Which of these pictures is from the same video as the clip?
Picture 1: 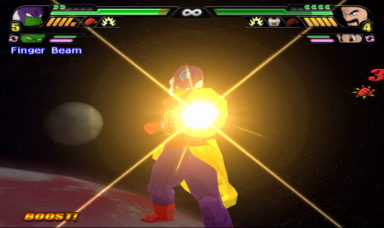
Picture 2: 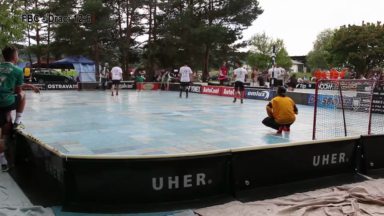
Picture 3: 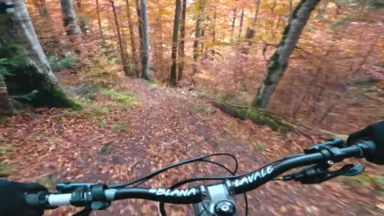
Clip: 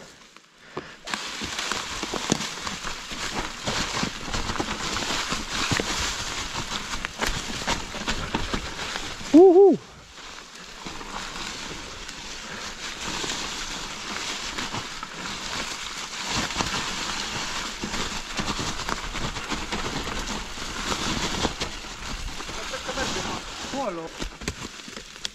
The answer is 3